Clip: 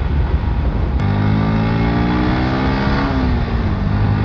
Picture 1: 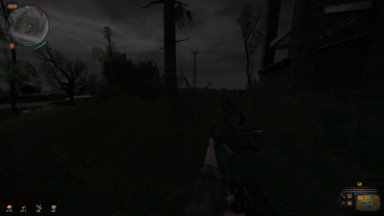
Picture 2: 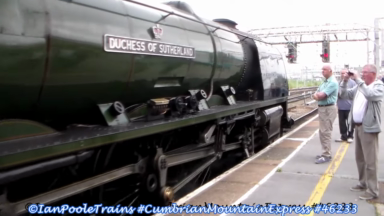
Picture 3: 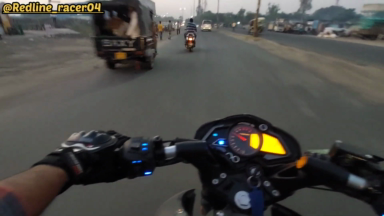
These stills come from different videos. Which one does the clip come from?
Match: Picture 3